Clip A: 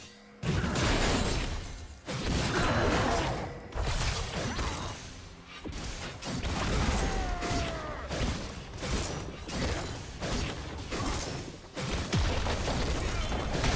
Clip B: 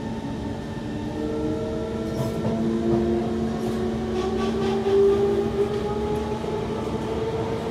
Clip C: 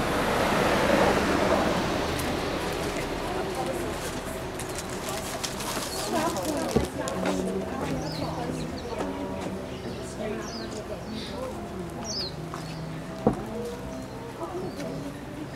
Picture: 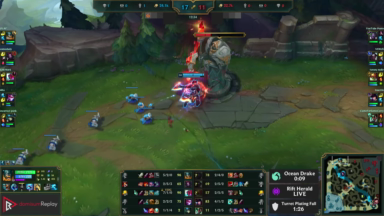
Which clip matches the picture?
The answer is A